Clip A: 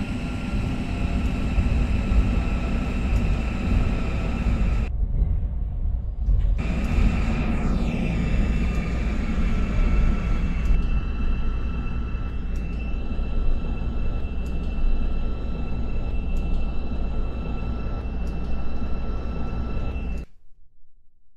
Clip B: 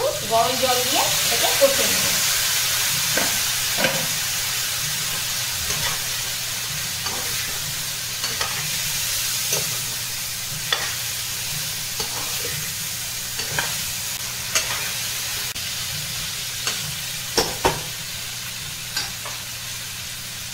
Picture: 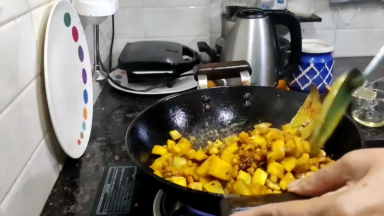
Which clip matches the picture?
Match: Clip B